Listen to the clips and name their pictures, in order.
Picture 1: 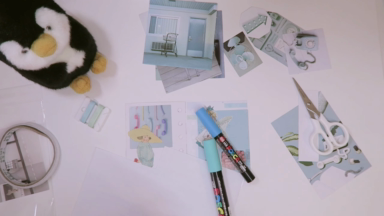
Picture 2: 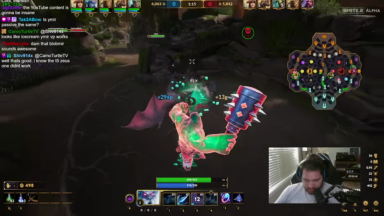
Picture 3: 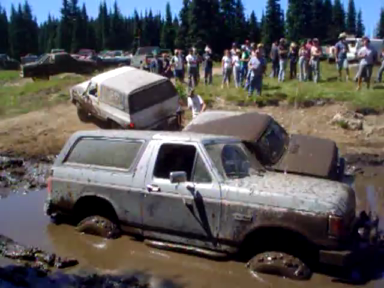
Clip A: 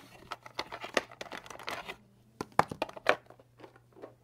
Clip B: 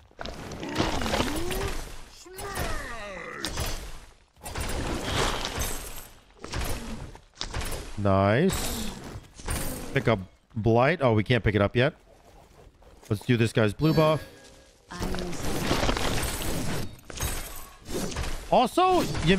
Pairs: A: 1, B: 2